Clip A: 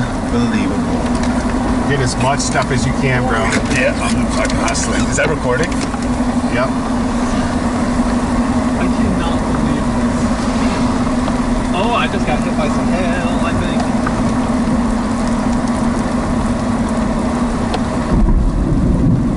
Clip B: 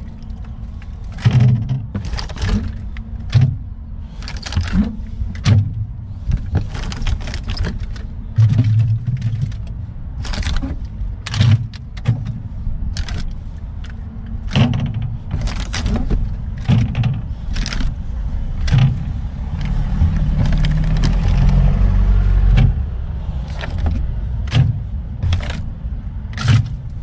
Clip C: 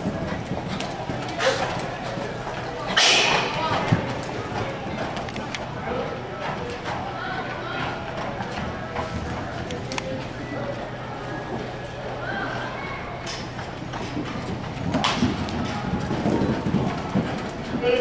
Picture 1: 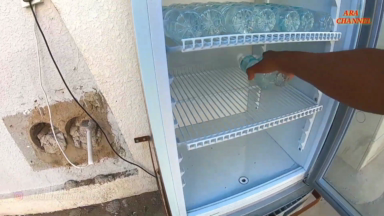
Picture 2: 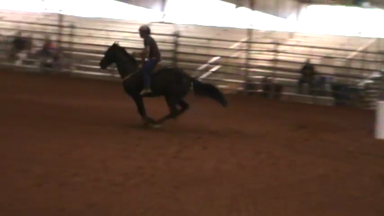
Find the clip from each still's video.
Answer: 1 B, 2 C